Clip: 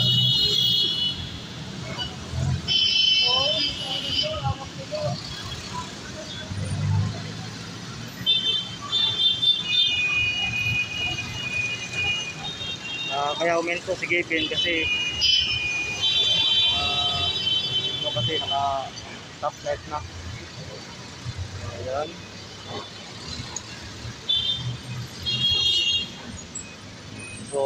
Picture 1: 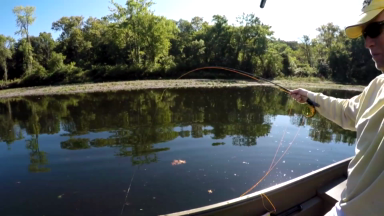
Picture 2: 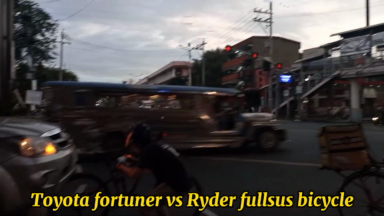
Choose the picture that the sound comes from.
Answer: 2